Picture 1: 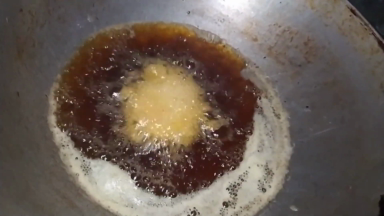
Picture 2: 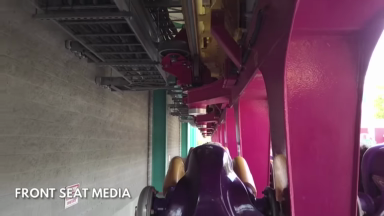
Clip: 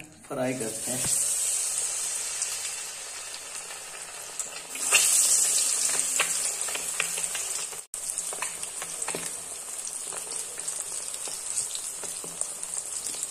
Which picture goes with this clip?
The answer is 1